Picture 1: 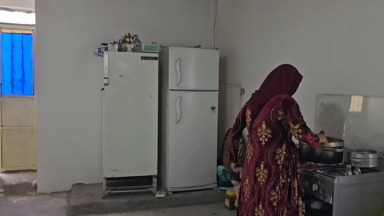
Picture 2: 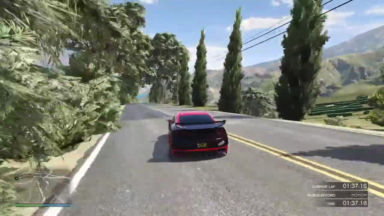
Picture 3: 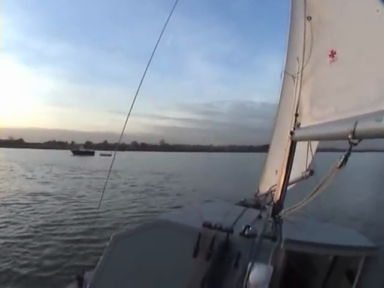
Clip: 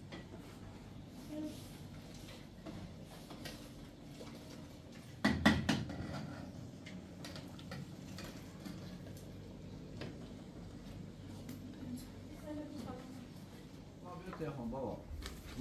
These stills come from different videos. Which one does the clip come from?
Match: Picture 1